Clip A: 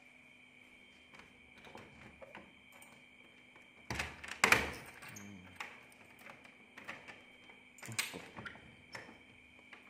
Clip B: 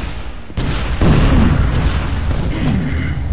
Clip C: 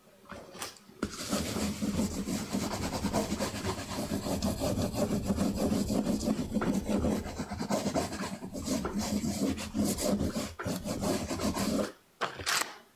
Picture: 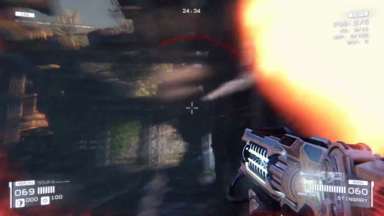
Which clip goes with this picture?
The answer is B